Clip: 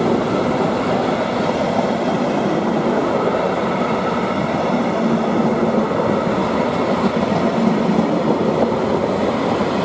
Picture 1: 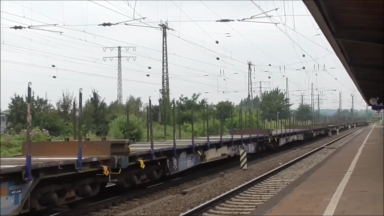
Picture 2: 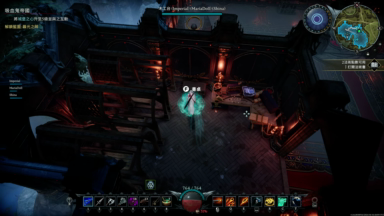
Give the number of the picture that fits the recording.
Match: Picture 1